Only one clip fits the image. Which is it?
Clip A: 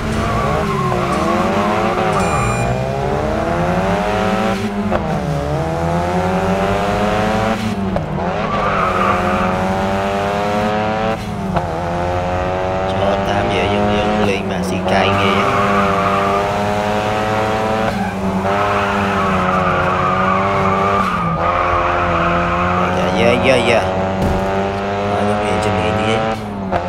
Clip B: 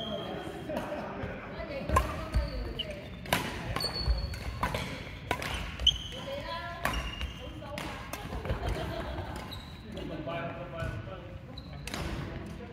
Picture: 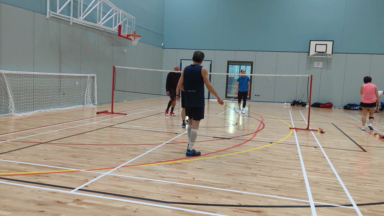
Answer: B